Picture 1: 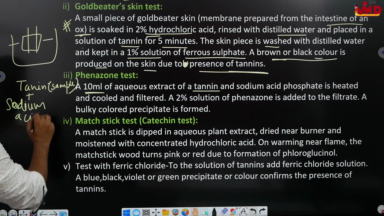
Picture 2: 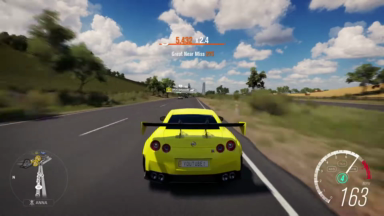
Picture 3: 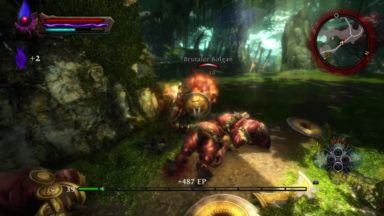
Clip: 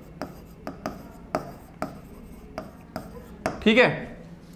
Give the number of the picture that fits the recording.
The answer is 1